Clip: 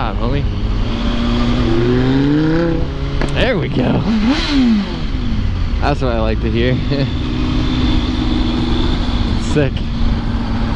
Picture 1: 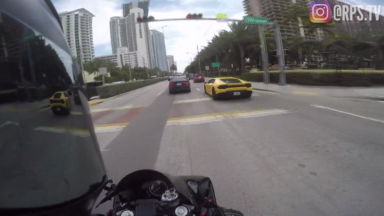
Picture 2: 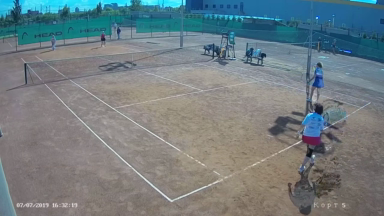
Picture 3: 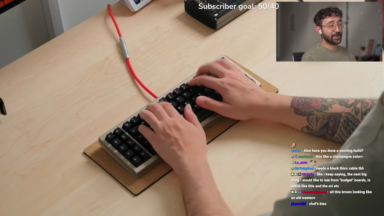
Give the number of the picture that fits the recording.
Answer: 1